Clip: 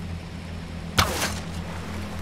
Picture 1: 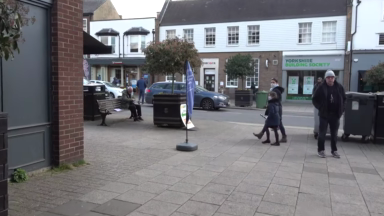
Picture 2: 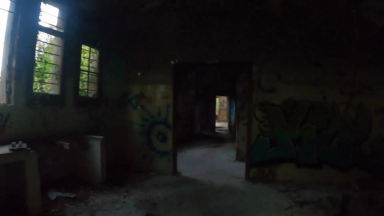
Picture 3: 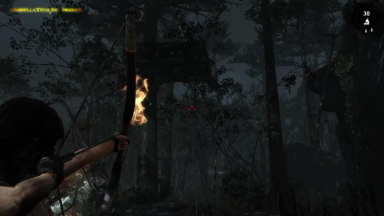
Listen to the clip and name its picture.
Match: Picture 3